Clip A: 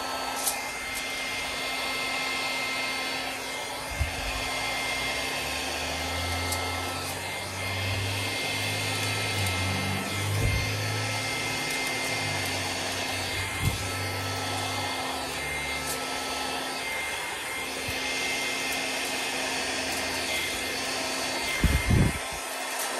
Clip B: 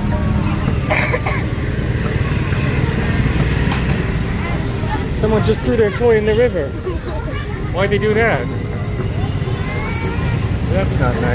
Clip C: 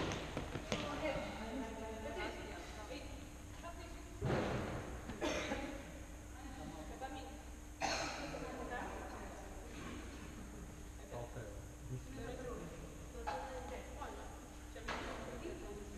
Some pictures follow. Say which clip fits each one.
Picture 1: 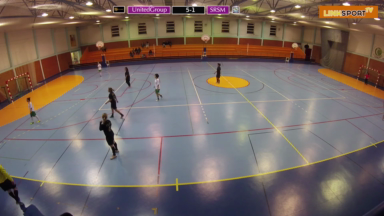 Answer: C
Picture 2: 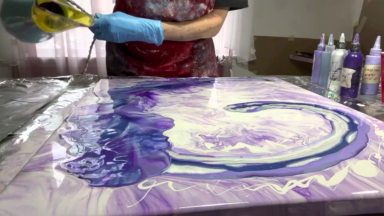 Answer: A